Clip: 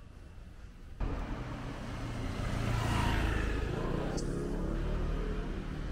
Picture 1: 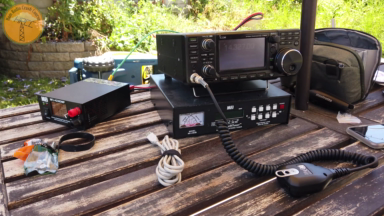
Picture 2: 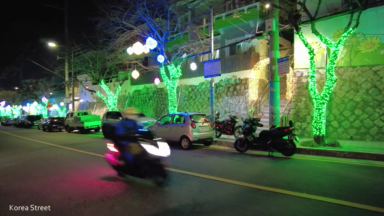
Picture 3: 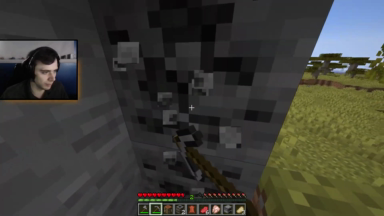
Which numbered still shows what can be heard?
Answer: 2